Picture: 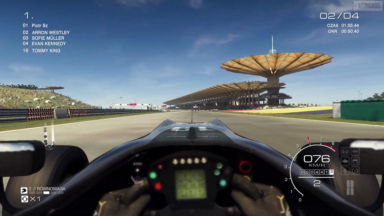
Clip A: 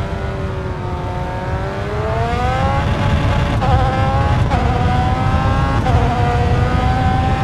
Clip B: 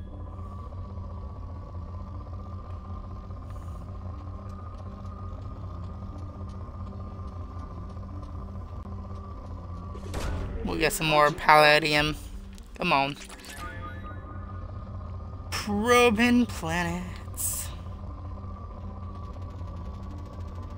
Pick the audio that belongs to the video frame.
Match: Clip A